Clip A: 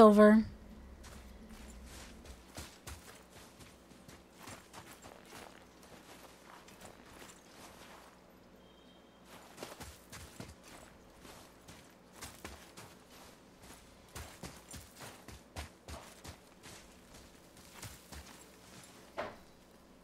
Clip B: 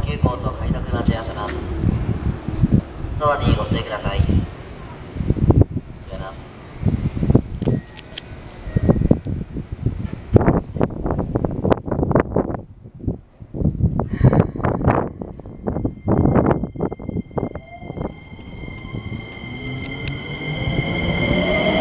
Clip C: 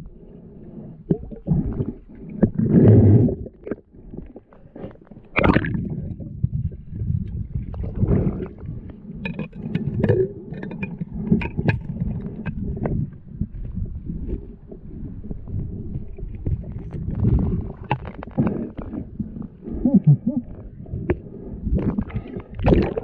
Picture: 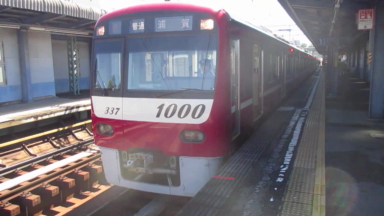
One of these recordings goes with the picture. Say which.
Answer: B